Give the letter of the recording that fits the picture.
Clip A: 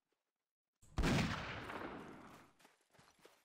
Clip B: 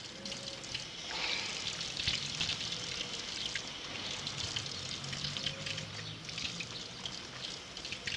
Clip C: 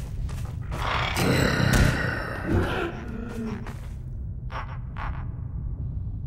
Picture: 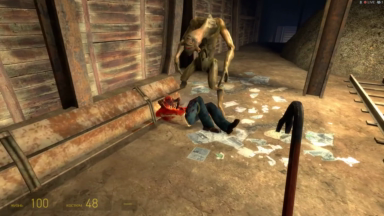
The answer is C